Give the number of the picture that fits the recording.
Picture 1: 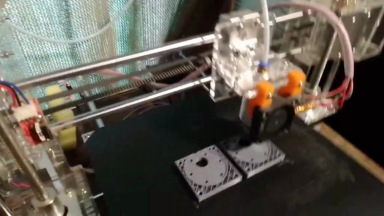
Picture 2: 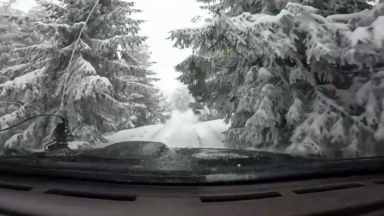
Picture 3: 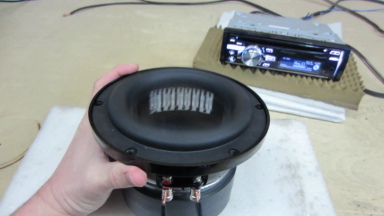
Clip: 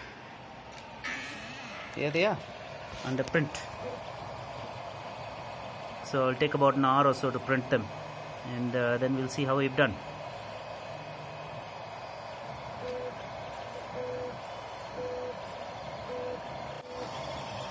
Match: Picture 1